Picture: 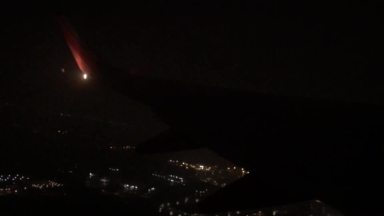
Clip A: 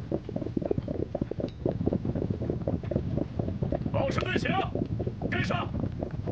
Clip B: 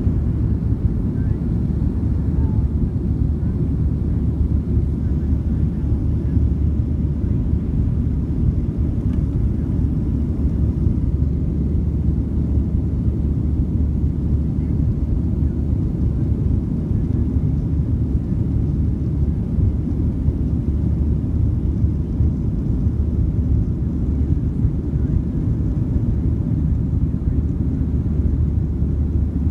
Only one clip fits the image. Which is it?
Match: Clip B